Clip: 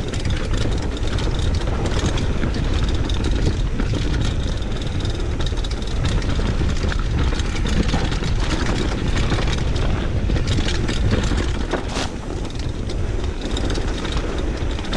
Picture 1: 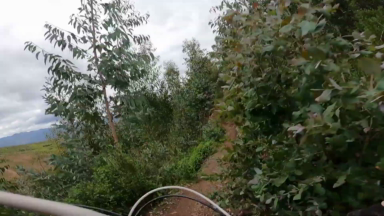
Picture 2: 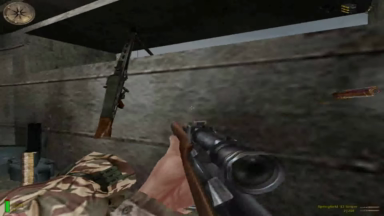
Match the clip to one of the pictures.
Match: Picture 1